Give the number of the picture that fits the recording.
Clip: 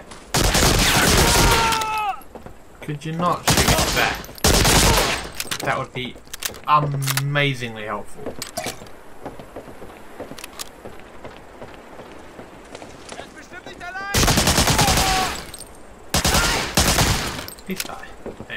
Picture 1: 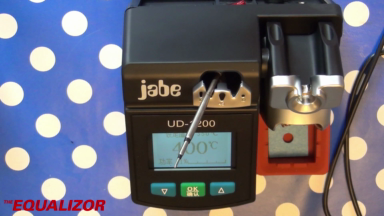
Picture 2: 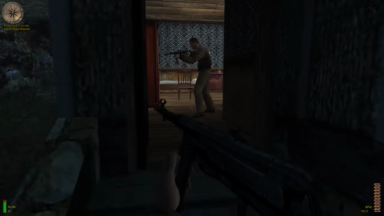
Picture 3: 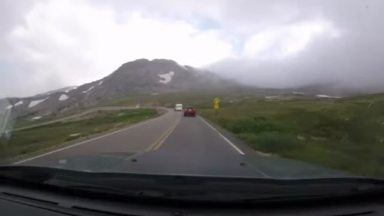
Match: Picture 2